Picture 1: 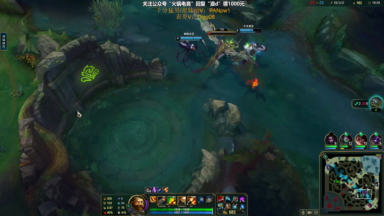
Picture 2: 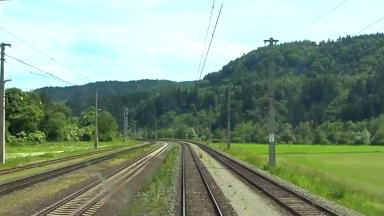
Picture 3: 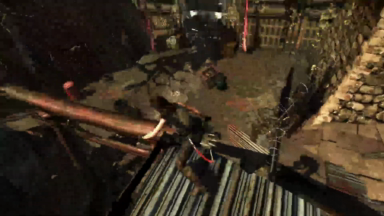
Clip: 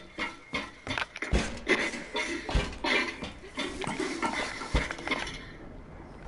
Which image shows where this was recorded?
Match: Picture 3